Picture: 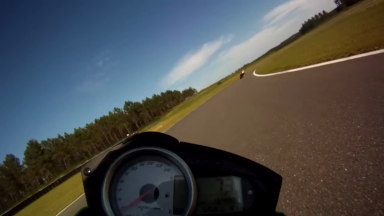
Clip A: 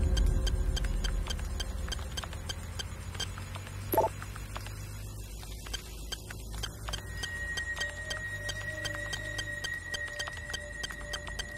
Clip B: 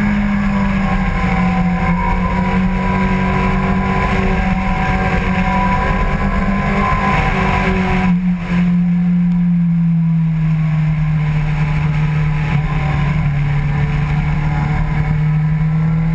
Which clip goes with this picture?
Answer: B